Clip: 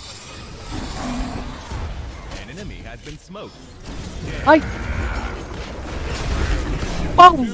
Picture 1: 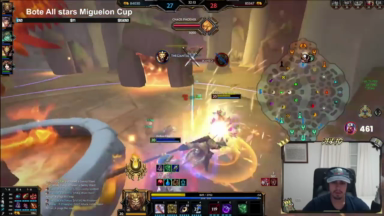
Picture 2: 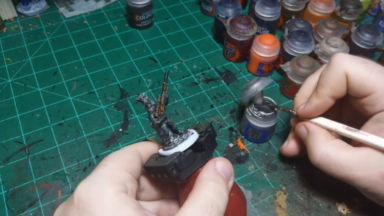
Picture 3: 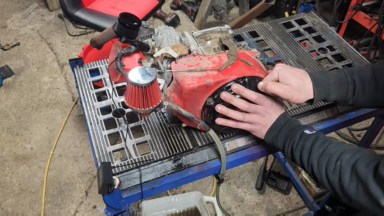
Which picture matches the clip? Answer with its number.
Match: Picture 1